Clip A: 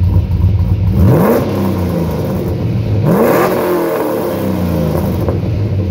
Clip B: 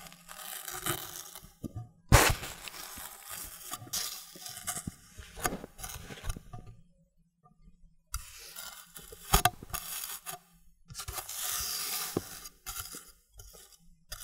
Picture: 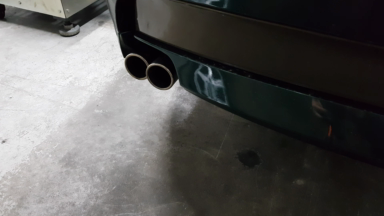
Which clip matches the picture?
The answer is A